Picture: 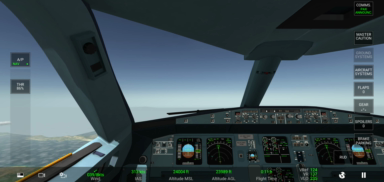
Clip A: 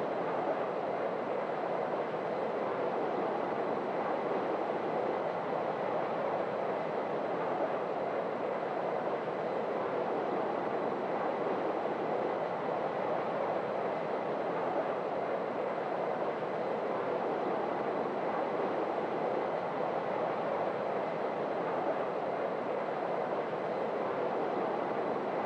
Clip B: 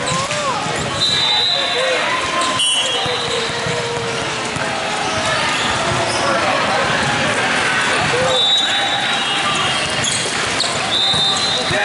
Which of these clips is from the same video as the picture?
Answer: A